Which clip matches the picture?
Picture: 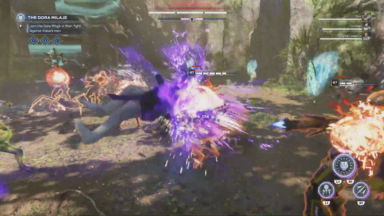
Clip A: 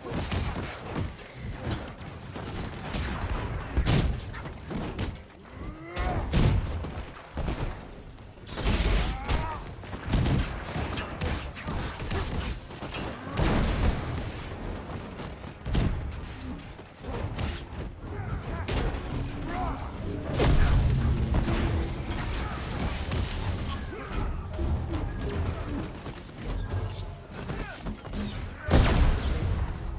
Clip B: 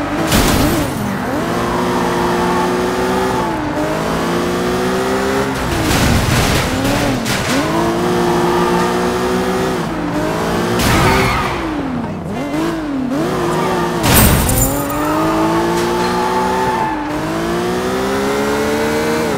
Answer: A